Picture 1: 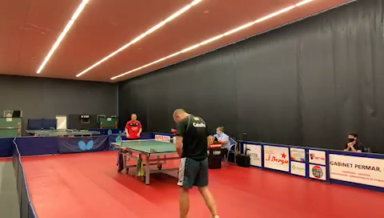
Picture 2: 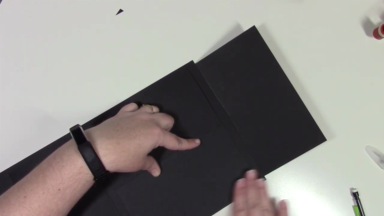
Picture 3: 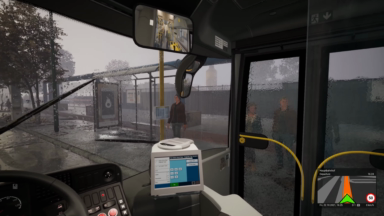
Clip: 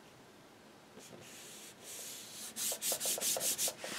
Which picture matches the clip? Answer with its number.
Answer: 2